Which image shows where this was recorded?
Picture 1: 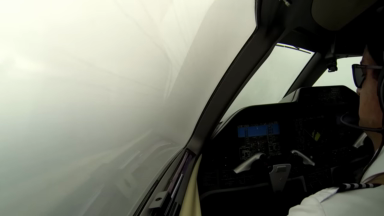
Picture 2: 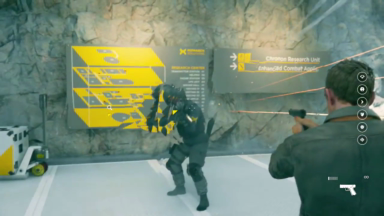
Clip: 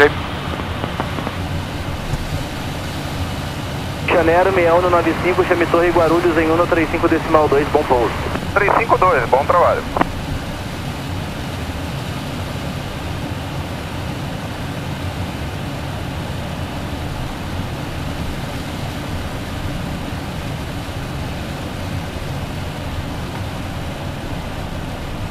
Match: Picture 1